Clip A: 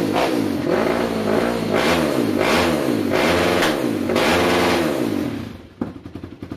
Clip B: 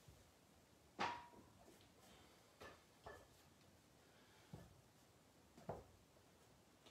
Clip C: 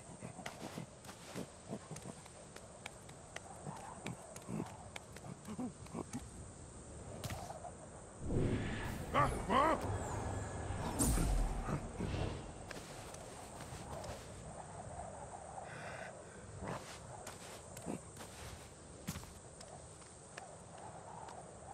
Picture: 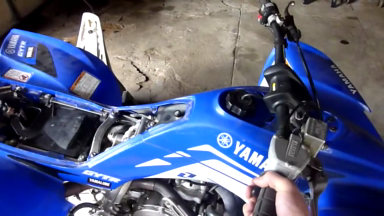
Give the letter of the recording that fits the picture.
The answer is A